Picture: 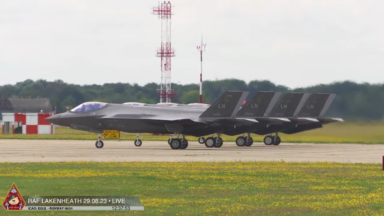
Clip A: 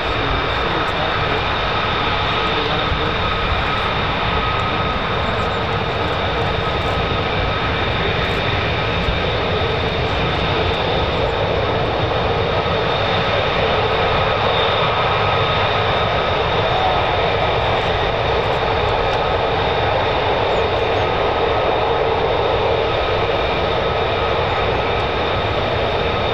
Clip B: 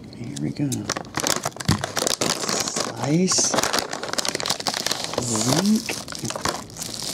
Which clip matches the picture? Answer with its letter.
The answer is A